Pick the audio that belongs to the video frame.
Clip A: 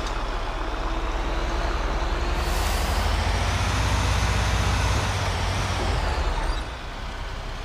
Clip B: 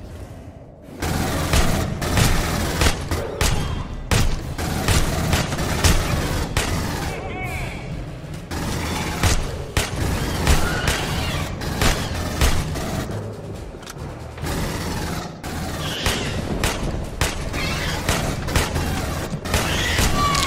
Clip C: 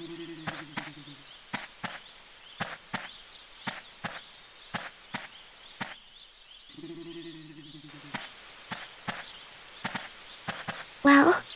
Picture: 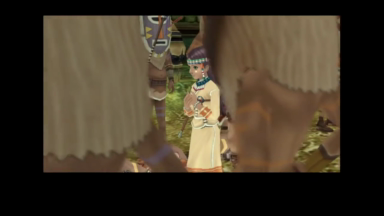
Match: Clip C